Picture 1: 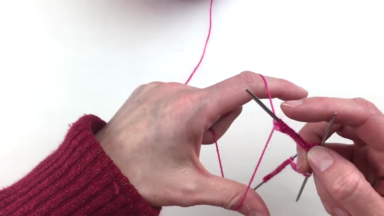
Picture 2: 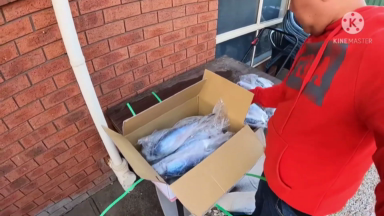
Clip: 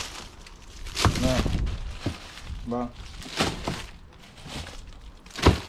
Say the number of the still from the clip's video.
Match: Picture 2